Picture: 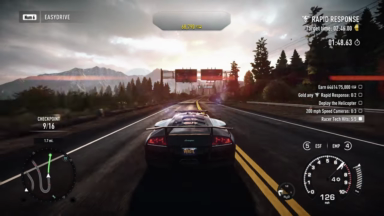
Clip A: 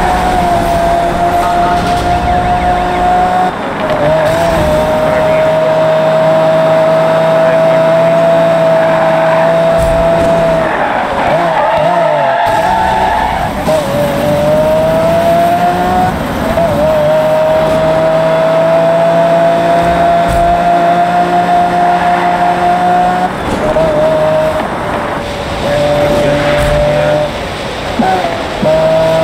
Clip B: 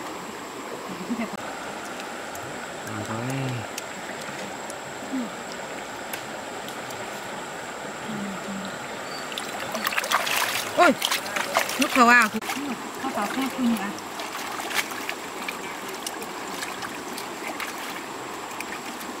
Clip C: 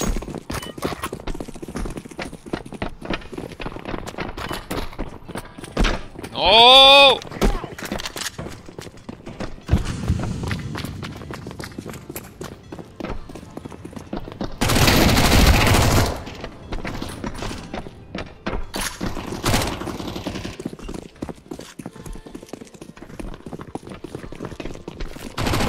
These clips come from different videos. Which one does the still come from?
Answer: A